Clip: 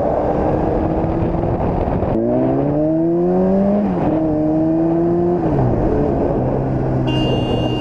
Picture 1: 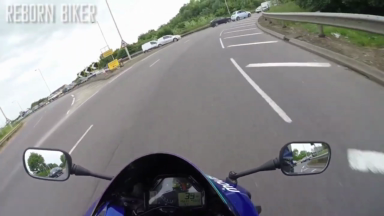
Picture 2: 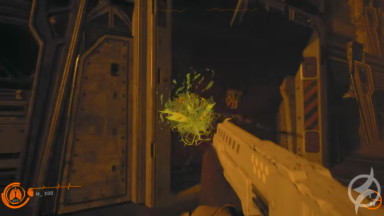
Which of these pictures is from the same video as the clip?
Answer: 1